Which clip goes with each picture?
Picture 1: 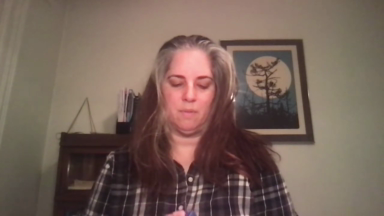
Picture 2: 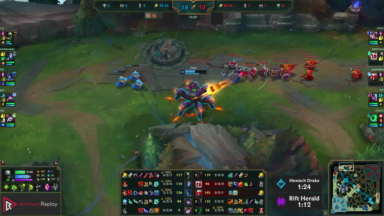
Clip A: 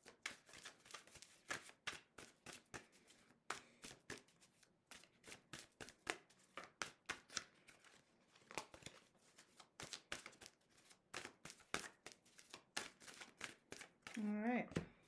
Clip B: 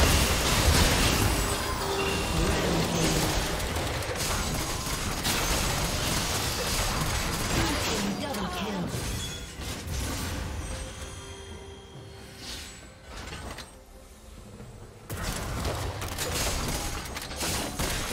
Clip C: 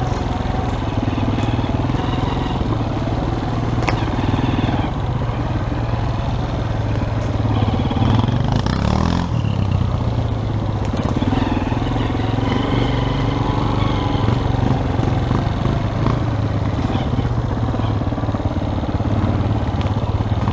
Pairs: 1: A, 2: B